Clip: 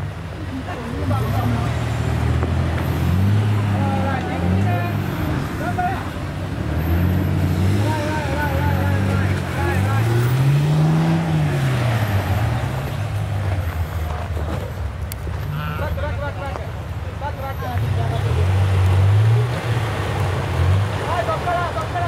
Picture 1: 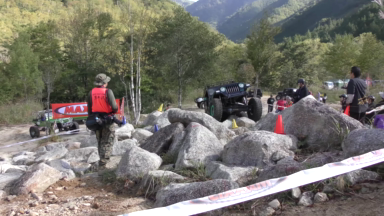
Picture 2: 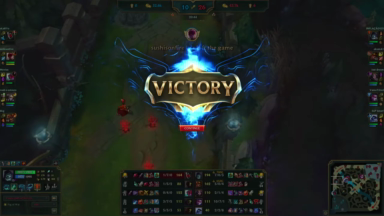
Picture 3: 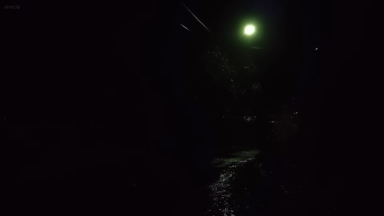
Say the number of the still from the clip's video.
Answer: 1